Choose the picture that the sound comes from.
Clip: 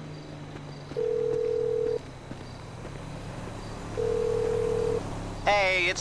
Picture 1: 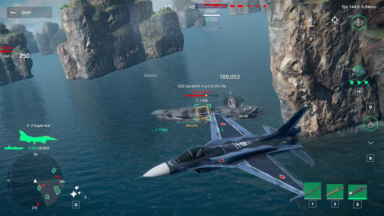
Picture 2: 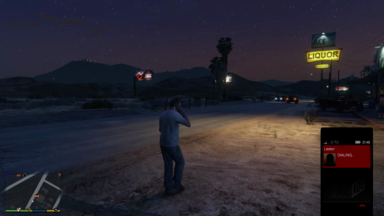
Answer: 2